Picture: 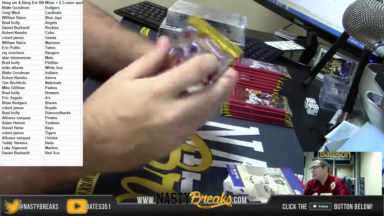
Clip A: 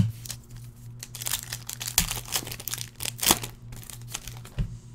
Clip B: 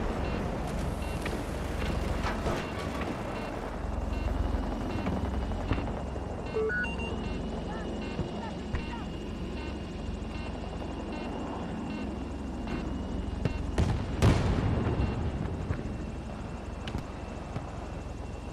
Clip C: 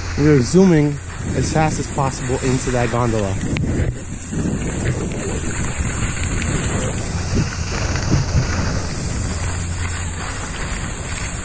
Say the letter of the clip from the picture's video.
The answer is A